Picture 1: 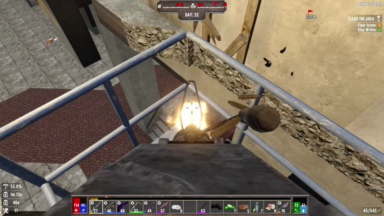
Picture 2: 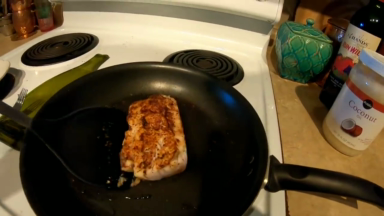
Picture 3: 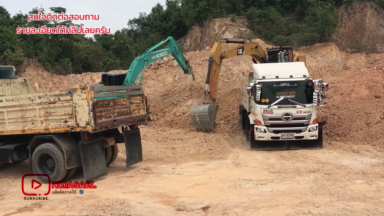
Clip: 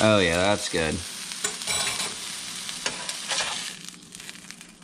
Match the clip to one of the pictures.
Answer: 2